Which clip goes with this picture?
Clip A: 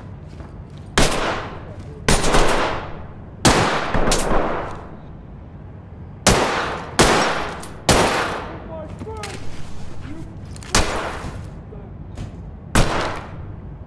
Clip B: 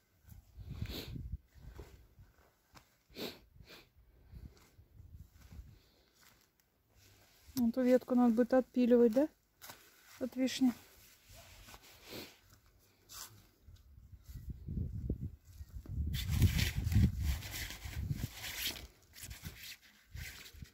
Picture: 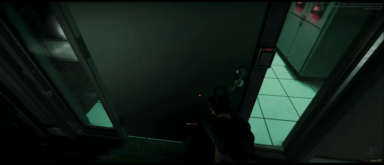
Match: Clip A